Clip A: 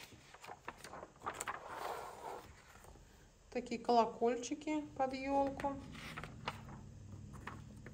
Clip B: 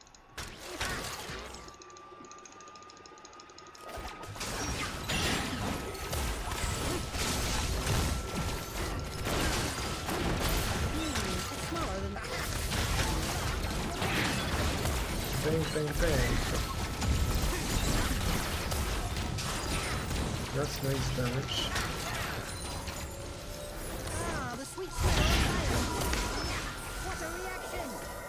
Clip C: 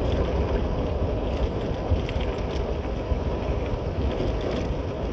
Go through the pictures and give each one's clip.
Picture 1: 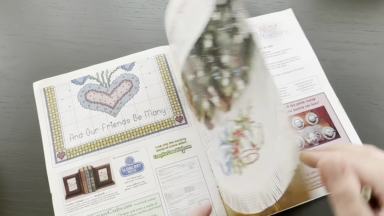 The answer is A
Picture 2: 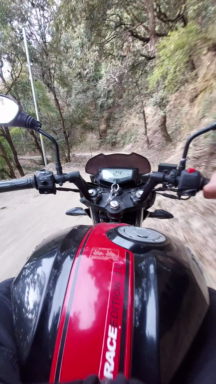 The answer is C